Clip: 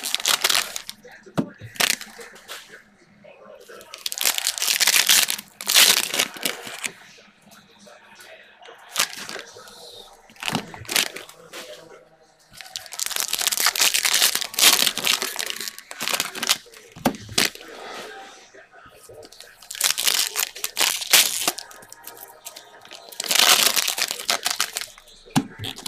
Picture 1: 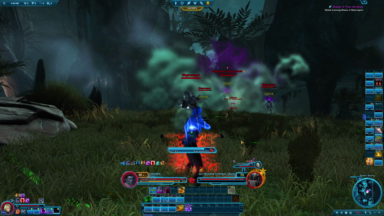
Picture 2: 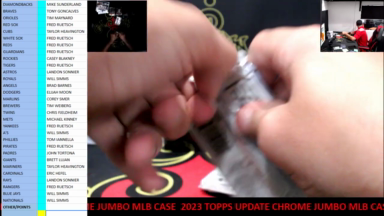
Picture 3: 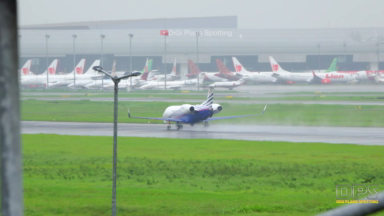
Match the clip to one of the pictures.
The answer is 2